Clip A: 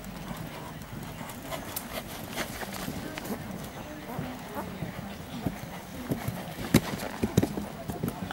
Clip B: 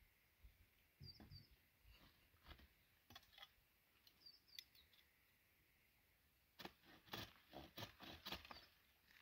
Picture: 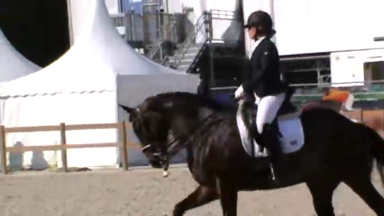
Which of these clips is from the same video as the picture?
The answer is A